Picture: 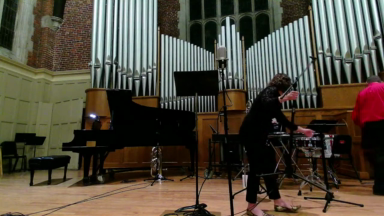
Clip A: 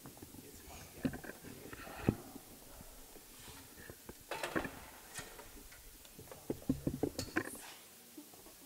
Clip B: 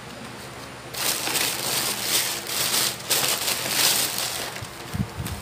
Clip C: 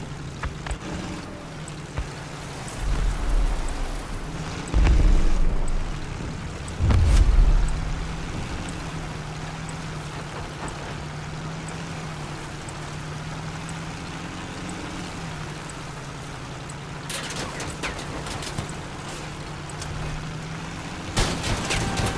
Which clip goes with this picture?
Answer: A